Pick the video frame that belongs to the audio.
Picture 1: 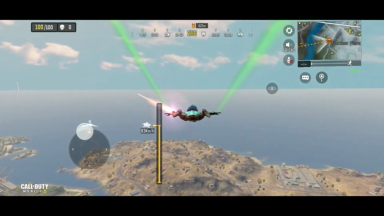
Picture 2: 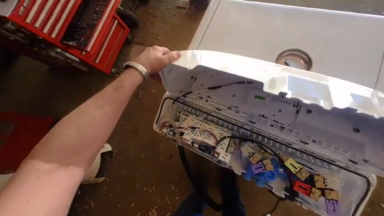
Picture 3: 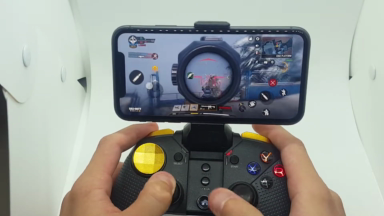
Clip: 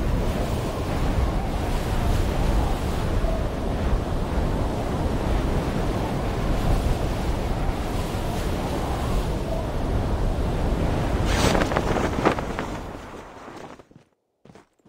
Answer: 1